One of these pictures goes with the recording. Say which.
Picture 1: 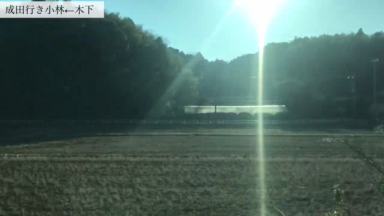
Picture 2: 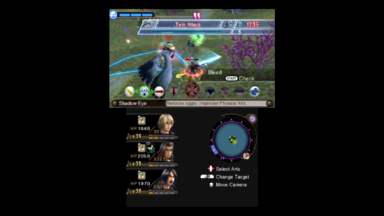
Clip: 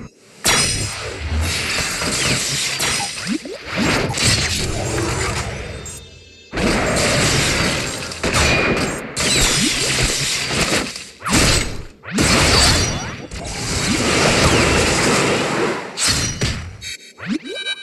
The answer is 2